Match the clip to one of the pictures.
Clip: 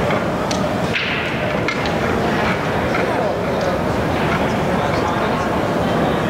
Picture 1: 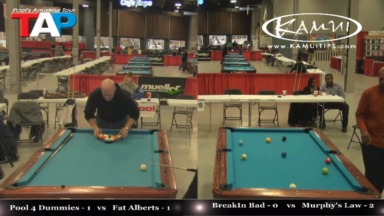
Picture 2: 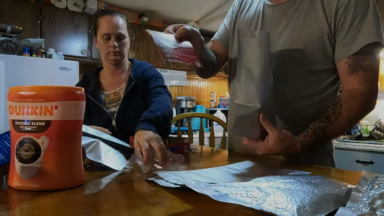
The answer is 1